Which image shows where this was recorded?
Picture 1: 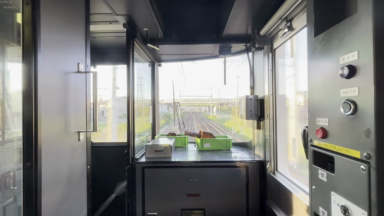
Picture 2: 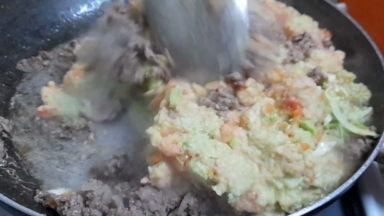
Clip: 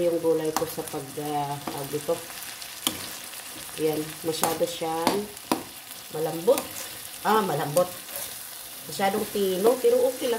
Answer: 2